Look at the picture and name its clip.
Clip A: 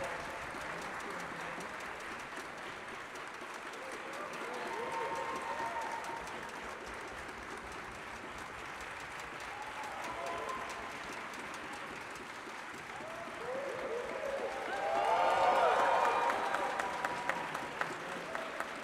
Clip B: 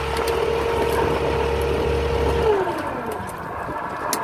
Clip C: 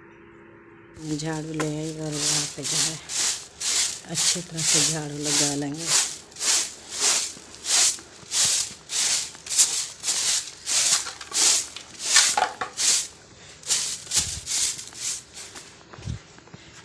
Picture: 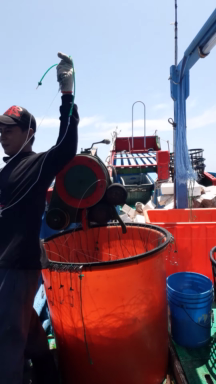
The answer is B